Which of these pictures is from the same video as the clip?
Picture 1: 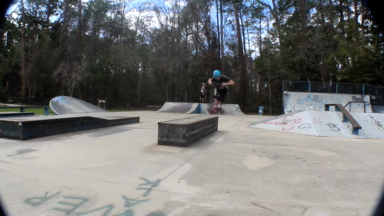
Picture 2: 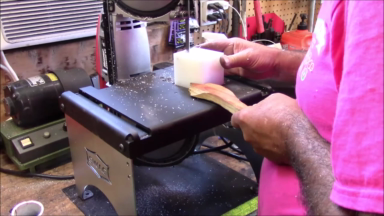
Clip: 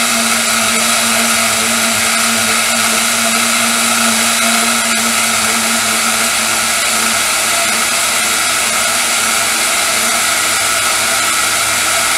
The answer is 2